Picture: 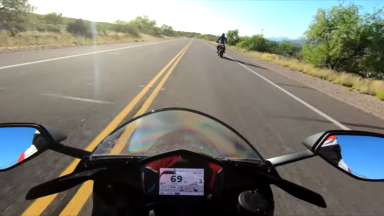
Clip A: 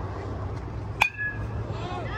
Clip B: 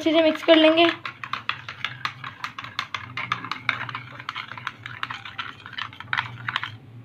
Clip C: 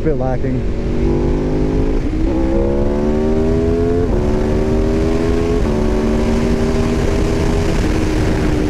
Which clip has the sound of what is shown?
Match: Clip C